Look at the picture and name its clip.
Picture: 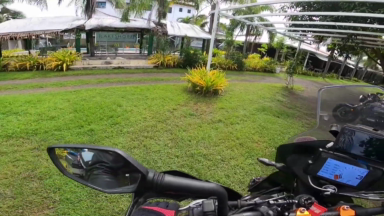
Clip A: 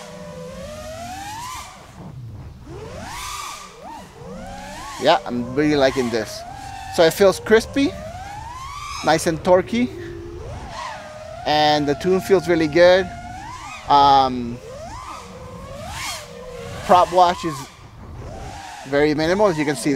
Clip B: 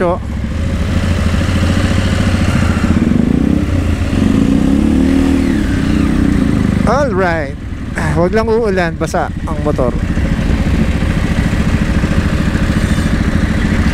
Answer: B